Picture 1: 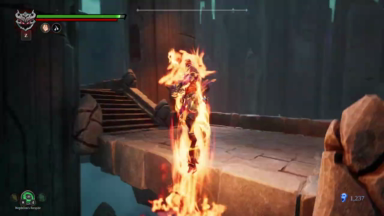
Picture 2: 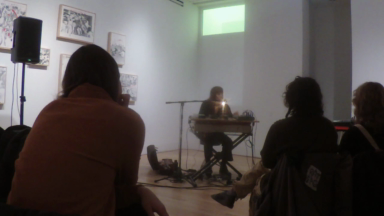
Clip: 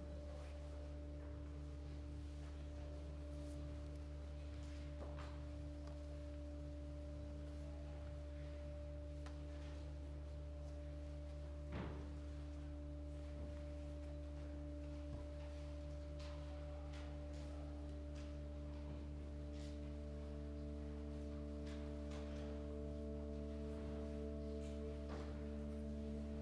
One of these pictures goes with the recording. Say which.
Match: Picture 2